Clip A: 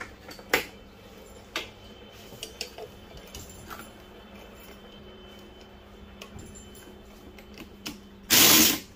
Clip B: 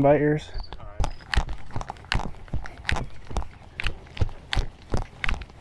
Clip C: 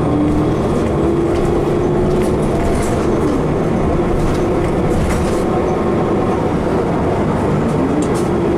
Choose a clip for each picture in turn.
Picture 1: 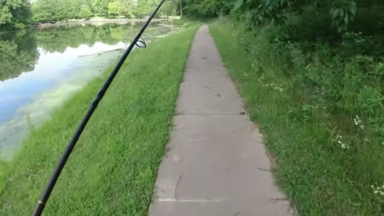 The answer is B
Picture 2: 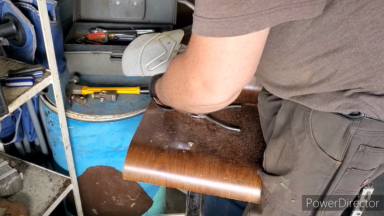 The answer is A